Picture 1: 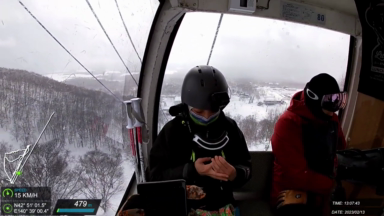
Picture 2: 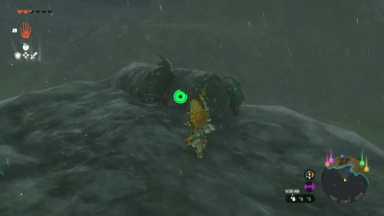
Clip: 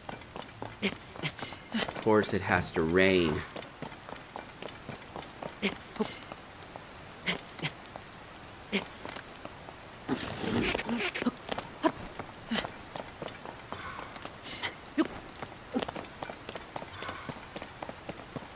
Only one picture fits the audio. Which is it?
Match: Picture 2